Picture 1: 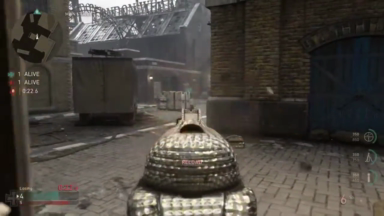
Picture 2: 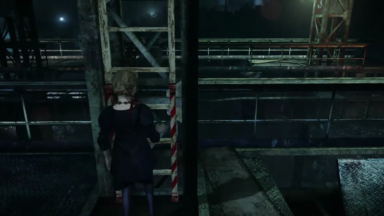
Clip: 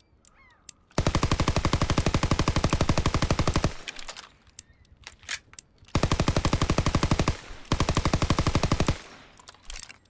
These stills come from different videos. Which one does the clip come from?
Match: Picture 1